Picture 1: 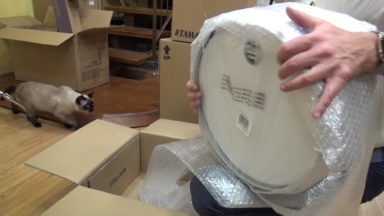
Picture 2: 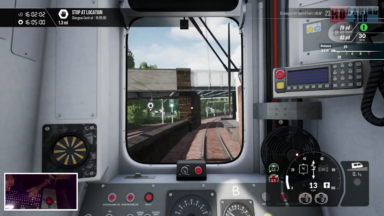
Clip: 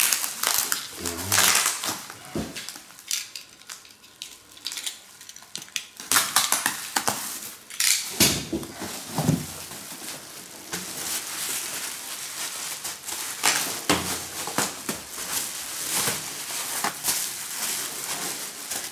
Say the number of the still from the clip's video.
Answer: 1